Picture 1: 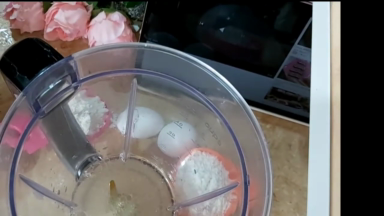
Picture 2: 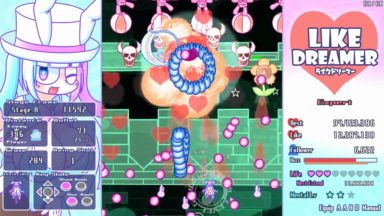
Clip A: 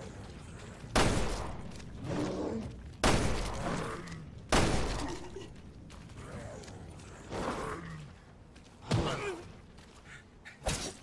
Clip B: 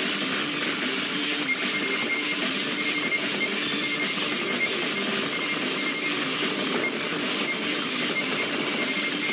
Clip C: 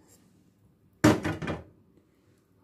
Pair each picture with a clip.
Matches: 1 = C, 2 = B